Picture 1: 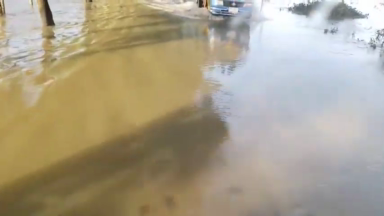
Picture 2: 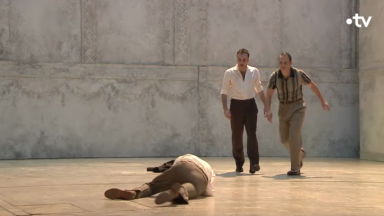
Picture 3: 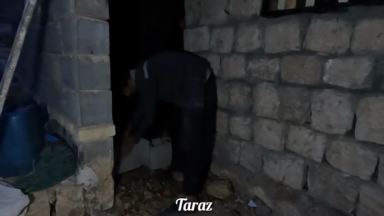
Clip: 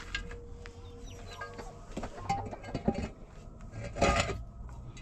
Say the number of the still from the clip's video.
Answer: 3